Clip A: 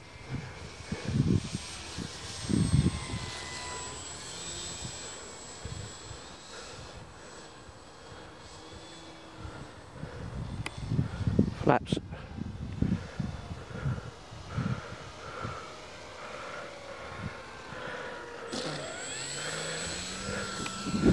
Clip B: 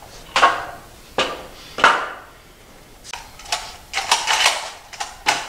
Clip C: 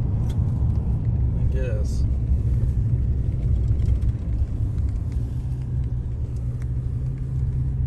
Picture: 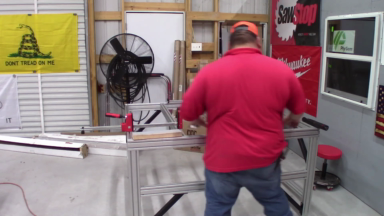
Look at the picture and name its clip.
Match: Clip B